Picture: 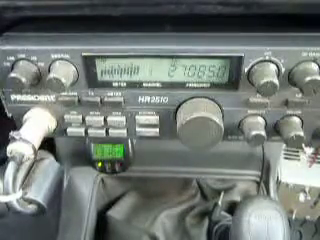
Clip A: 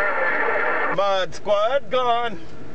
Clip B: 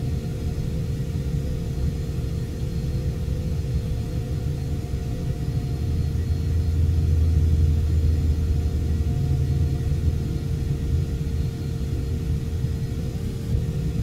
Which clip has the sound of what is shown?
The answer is A